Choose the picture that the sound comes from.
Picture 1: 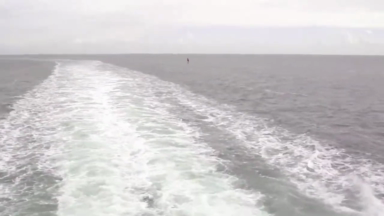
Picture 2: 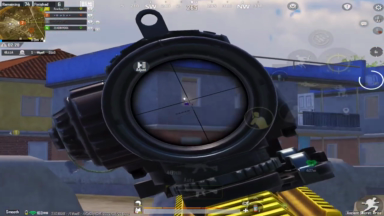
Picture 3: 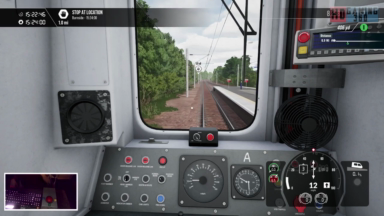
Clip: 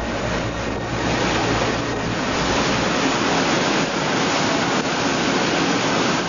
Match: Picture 1